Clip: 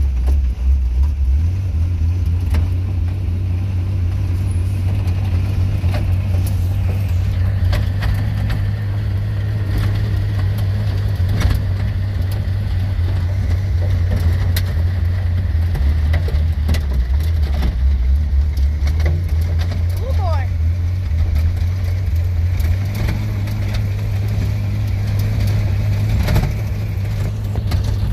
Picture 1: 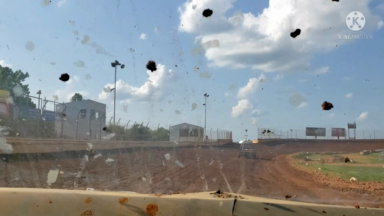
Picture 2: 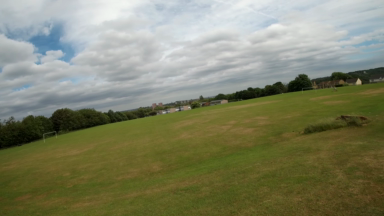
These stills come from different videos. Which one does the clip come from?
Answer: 1